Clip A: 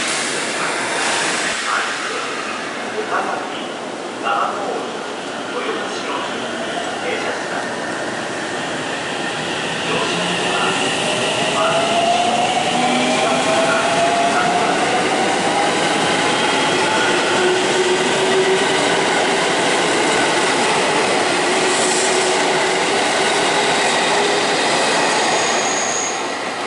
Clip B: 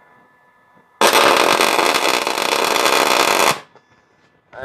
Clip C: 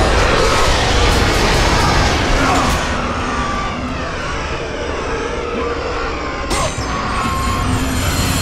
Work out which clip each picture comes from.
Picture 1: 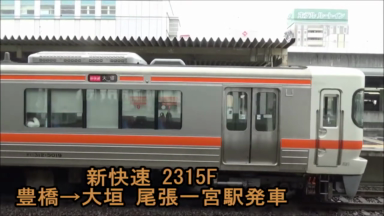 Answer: A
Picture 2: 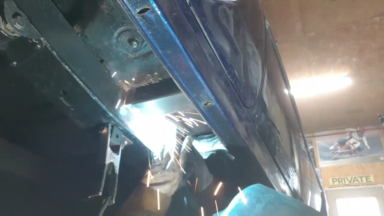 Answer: B